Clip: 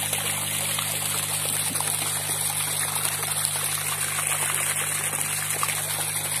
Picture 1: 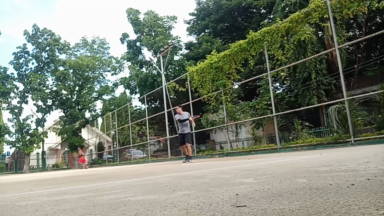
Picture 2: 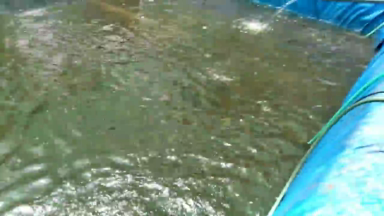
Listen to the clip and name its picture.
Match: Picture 2